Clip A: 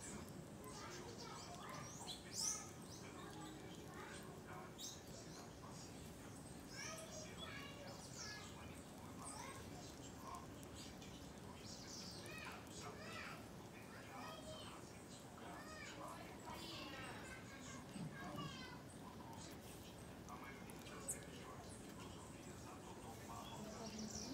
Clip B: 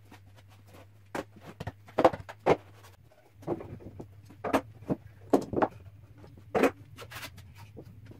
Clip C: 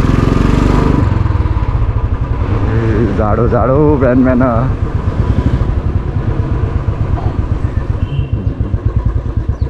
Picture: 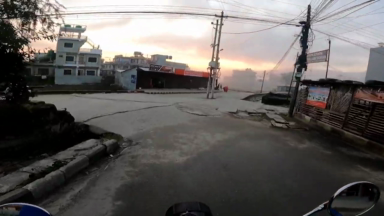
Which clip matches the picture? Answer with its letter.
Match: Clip C